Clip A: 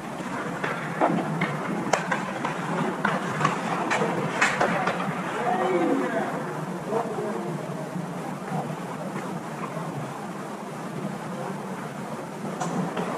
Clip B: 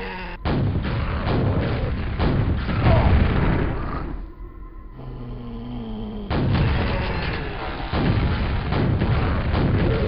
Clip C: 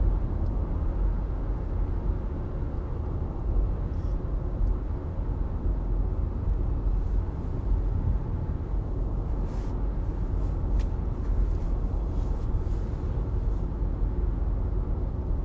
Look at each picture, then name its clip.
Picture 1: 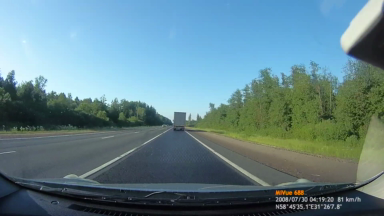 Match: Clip C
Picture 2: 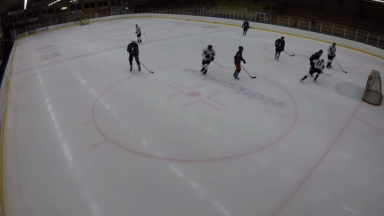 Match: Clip A